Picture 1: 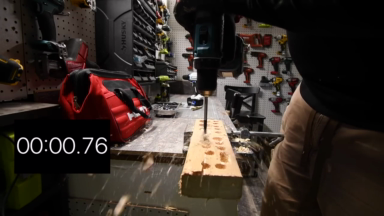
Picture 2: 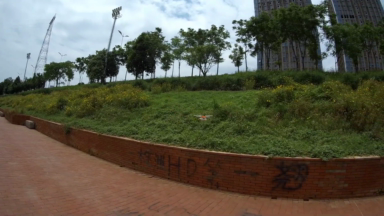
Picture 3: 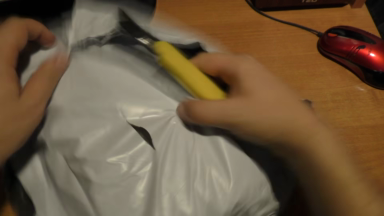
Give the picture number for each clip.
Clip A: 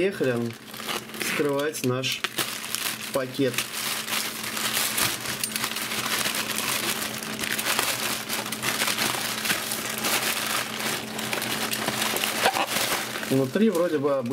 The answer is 3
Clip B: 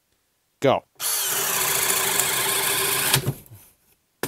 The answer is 1